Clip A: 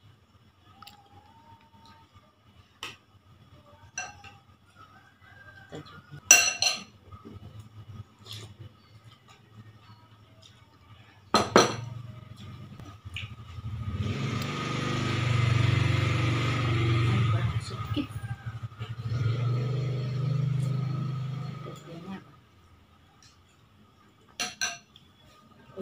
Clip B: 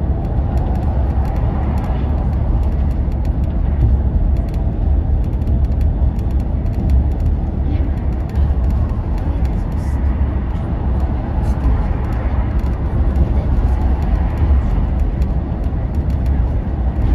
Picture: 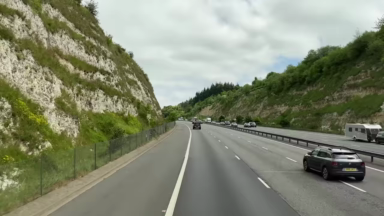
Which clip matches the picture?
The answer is B